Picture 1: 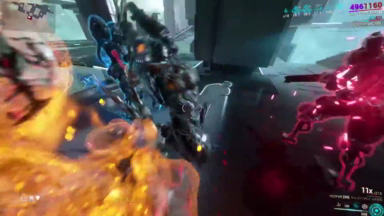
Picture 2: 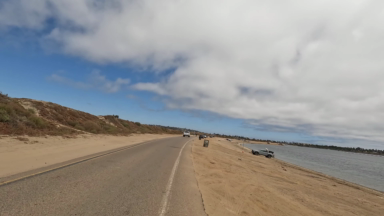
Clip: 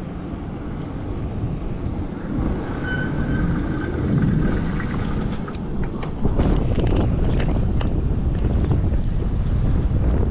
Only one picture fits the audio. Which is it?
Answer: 2